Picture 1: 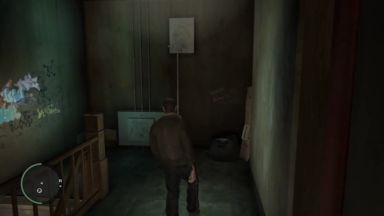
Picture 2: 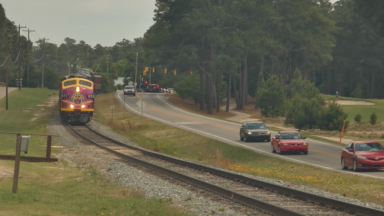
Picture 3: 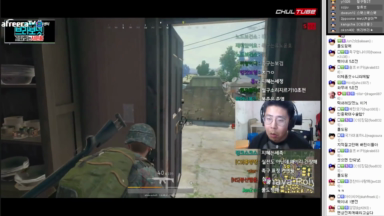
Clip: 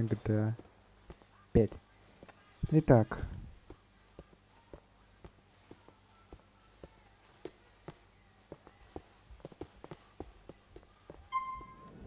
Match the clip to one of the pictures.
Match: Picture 1